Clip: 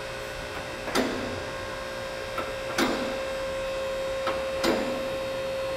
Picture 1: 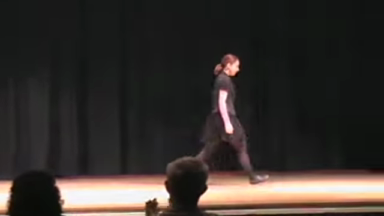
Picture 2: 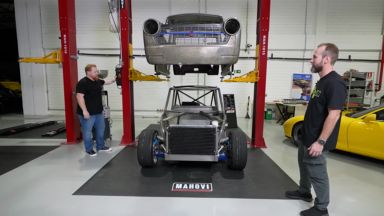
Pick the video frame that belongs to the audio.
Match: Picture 2